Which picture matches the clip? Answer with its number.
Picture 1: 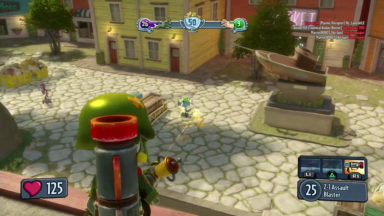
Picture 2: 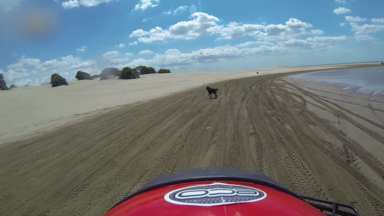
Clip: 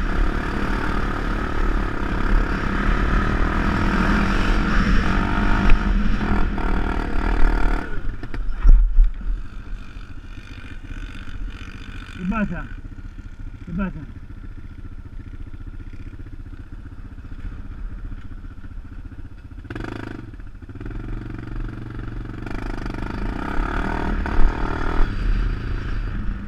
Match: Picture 2